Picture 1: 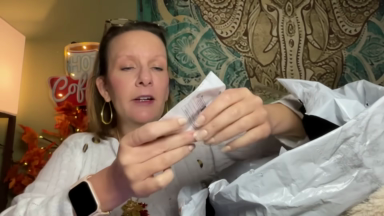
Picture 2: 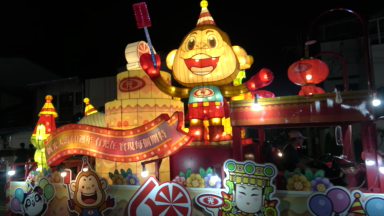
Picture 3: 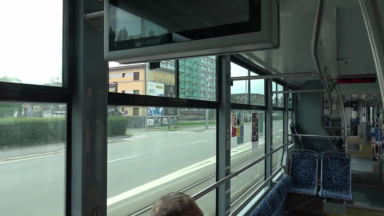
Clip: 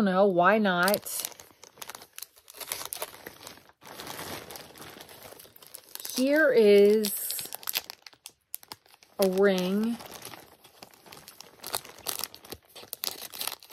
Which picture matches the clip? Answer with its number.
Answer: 1